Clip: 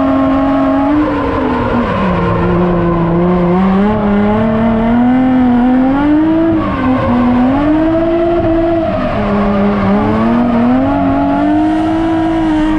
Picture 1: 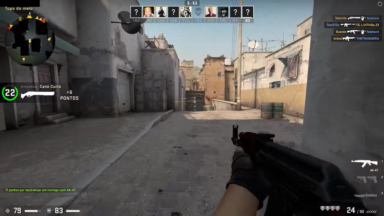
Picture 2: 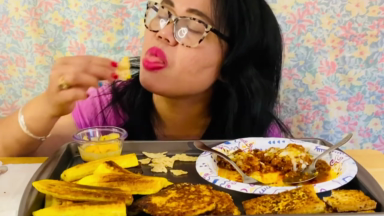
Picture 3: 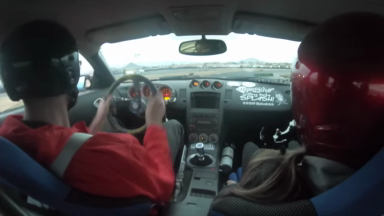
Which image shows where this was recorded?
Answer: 3